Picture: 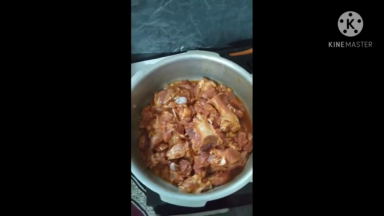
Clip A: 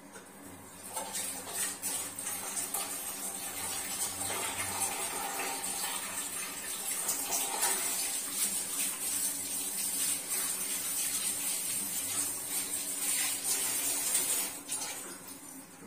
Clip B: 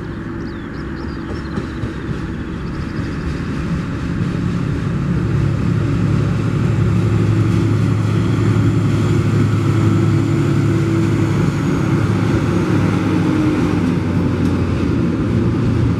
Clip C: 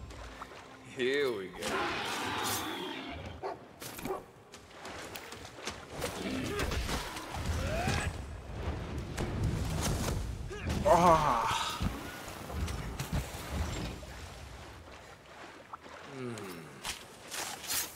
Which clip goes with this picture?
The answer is A